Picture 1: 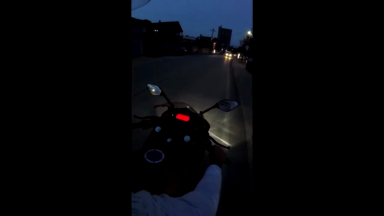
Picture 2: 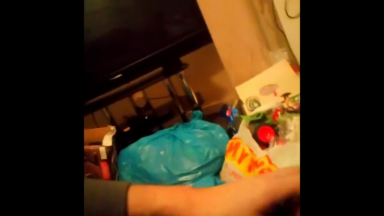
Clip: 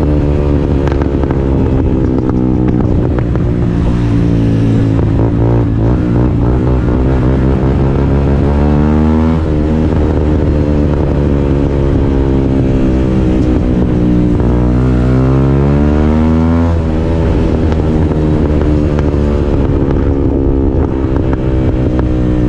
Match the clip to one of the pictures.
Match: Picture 1